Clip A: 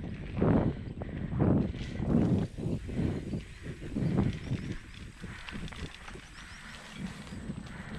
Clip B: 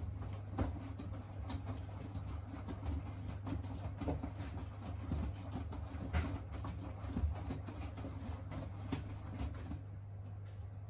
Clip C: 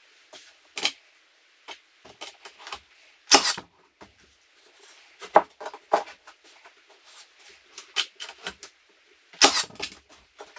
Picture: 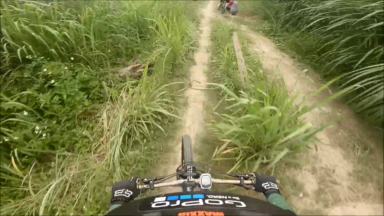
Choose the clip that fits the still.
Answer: A